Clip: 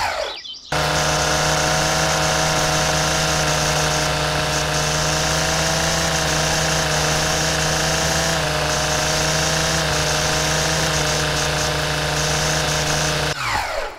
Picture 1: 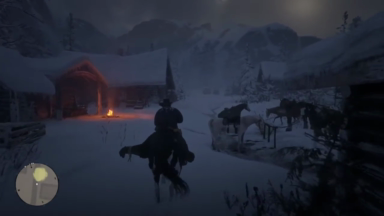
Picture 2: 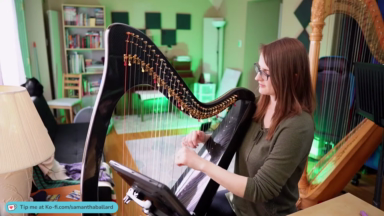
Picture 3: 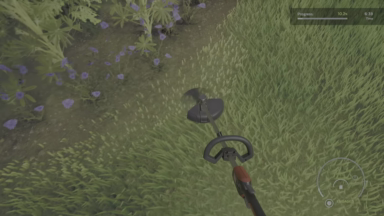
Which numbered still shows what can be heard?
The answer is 3